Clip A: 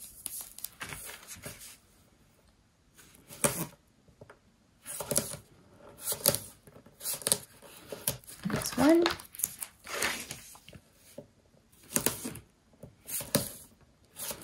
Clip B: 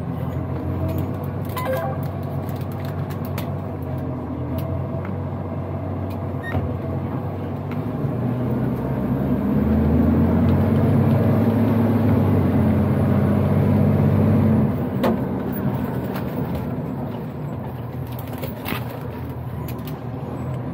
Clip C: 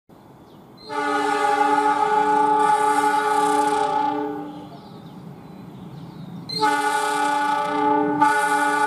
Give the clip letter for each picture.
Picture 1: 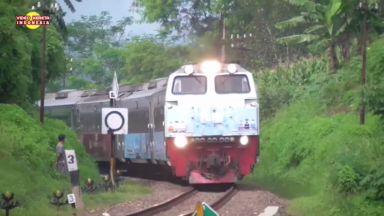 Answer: C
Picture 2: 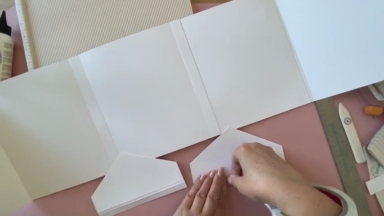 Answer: A